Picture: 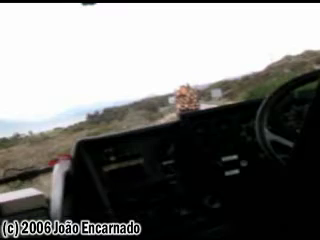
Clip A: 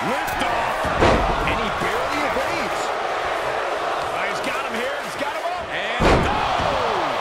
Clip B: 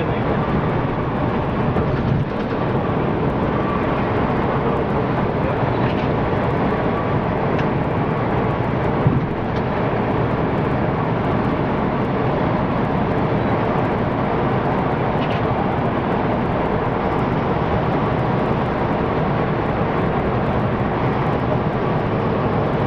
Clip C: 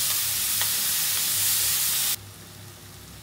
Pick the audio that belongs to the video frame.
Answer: B